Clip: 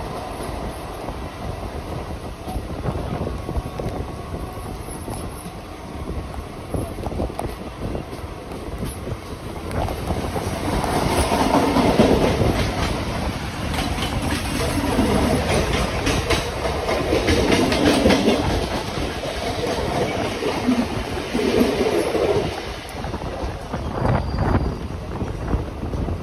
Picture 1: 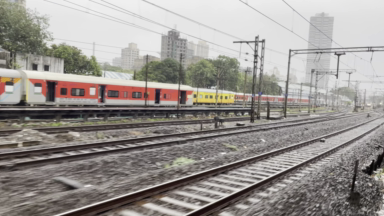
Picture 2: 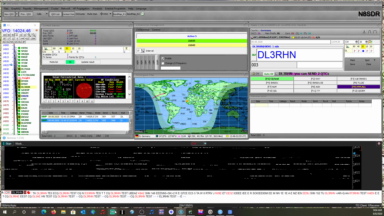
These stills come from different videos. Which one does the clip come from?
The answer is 1